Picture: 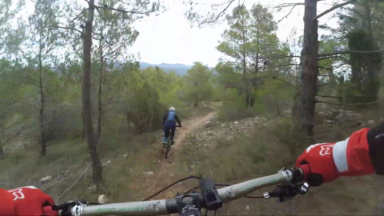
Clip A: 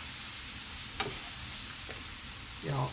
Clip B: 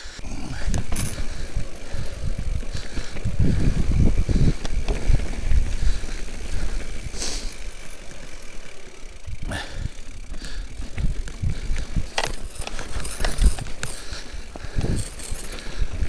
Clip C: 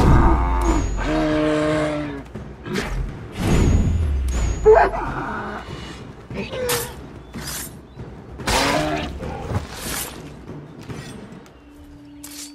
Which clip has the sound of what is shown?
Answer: B